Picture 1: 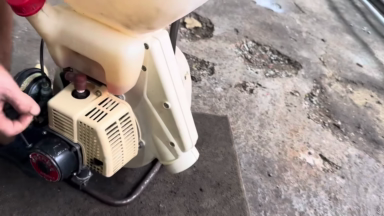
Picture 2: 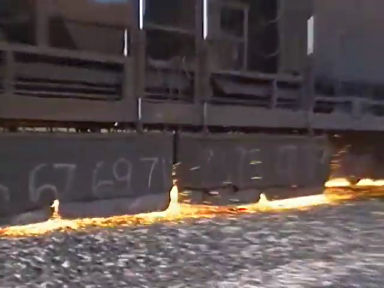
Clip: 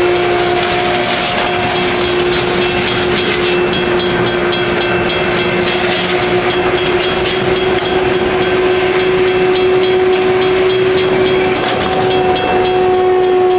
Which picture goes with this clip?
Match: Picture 2